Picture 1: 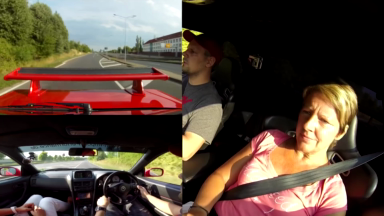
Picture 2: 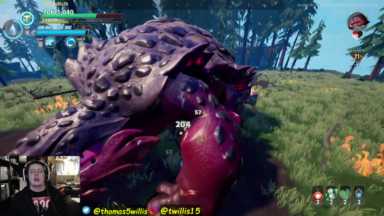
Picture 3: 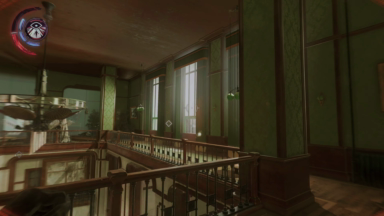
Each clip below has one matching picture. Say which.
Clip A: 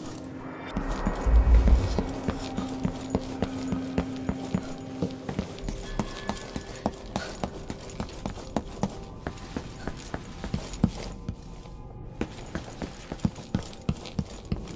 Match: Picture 3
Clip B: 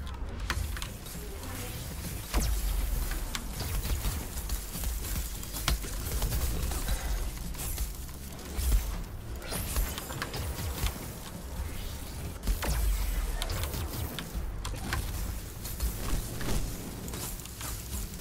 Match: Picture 2